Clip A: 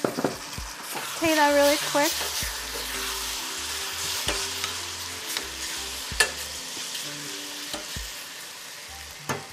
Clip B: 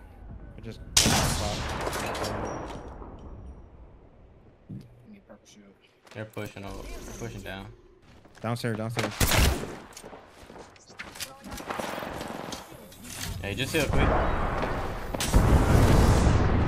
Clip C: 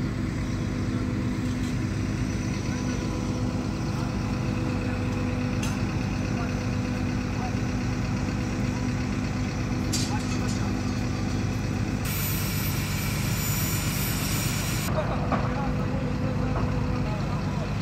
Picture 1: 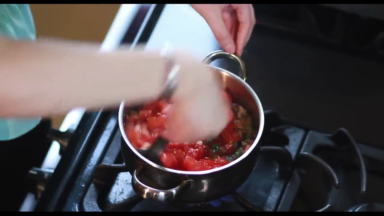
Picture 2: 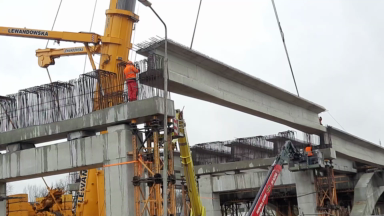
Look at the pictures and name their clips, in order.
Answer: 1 A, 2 C